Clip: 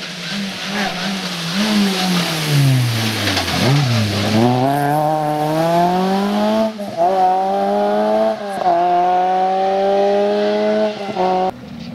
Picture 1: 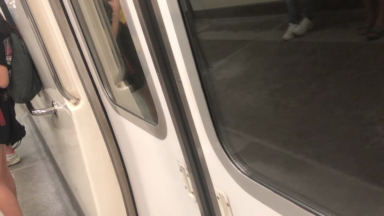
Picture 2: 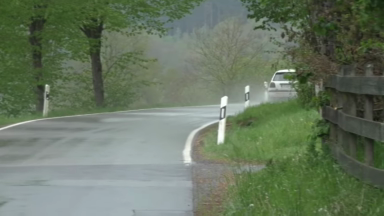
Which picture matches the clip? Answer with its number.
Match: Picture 2